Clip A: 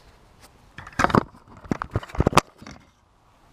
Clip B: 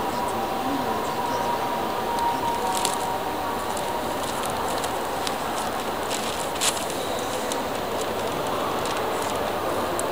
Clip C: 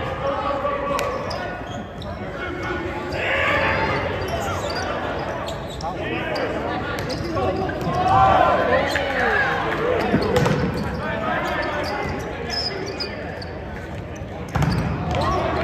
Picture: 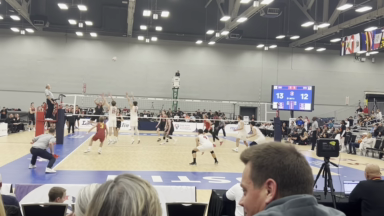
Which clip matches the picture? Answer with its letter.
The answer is C